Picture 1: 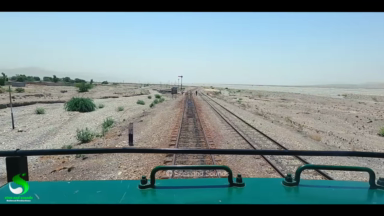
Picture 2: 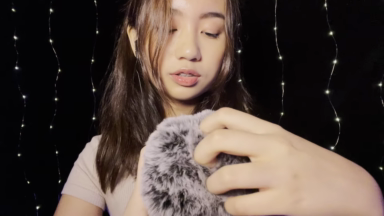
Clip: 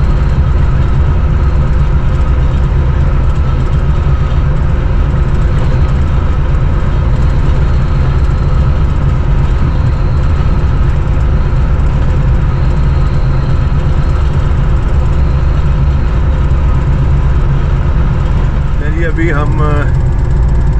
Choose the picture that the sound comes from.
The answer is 1